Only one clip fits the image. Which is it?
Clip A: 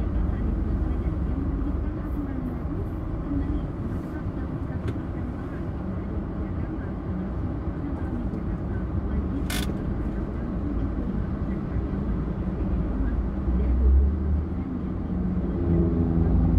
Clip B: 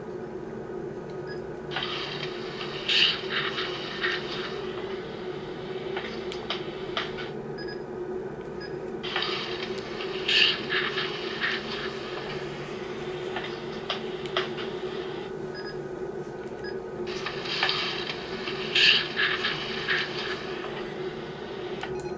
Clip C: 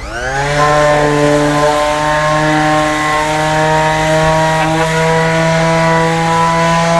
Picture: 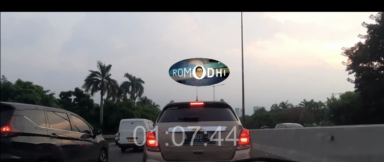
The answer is A